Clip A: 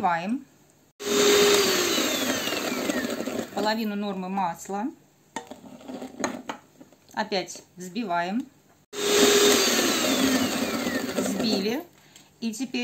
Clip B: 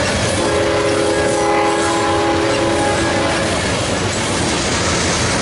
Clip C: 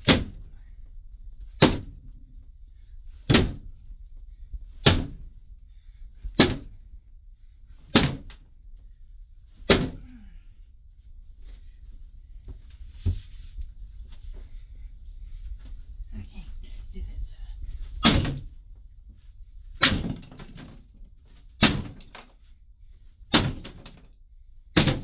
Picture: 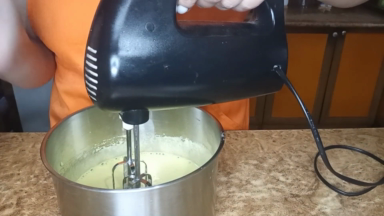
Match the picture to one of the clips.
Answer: A